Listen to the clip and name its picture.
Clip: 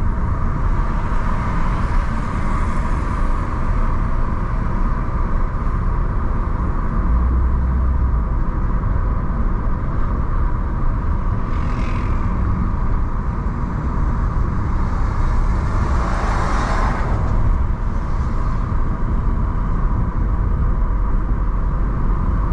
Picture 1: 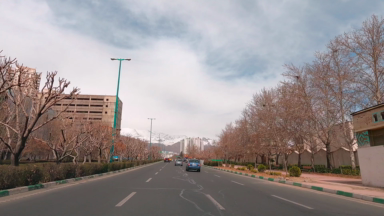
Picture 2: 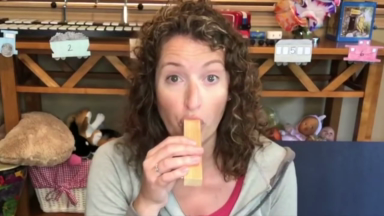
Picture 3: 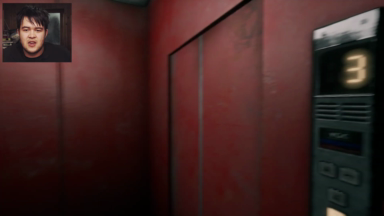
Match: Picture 1